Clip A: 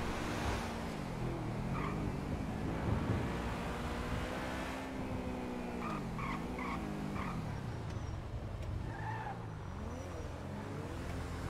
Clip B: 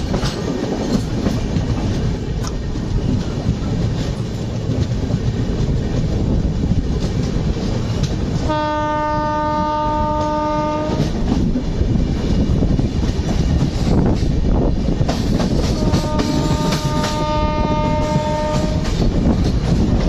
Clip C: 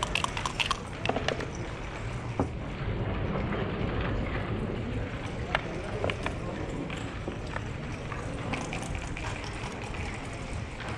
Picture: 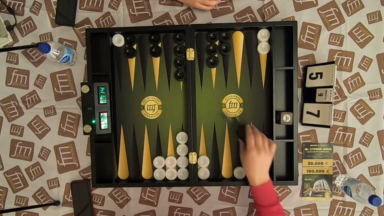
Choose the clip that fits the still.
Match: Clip C